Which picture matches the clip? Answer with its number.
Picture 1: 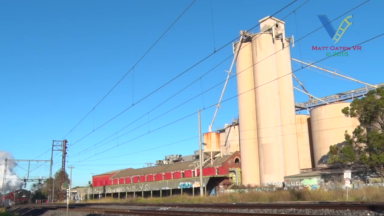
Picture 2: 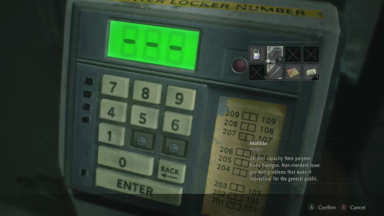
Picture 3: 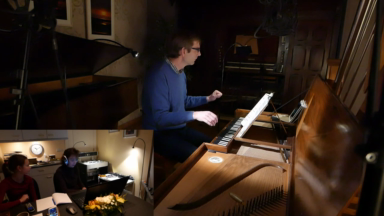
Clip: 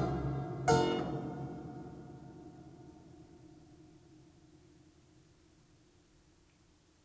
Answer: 3